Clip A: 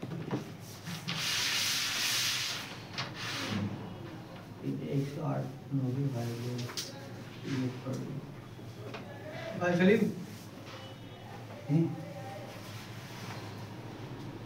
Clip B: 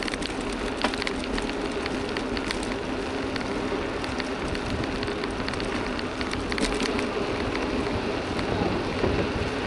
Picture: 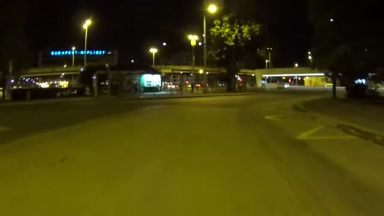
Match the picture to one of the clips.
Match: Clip B